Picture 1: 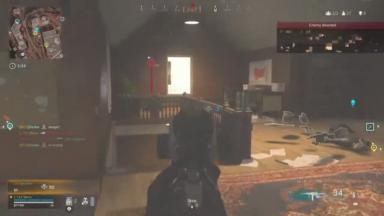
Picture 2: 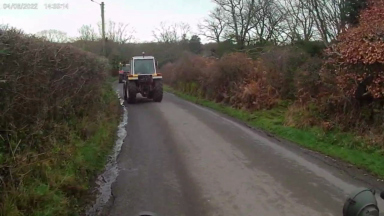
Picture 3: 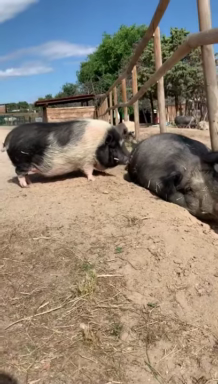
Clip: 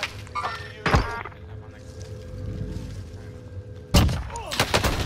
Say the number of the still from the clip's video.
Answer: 1